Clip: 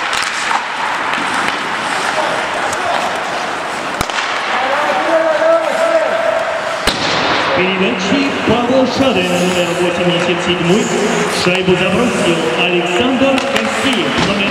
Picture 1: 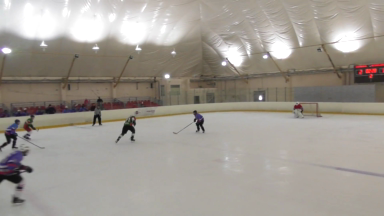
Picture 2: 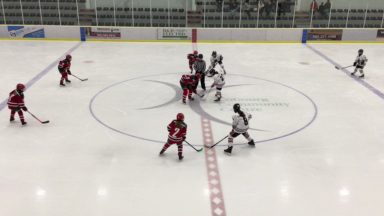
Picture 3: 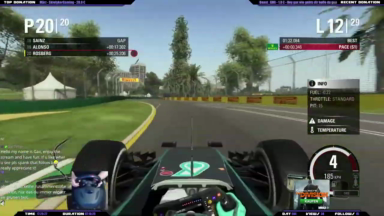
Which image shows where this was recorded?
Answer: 1